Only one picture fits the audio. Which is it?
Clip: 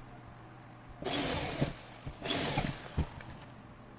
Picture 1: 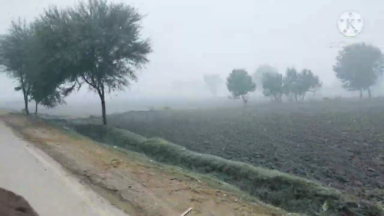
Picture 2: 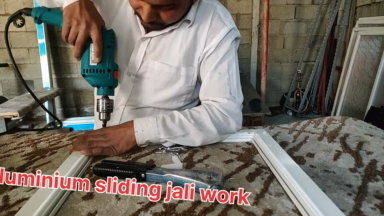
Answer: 2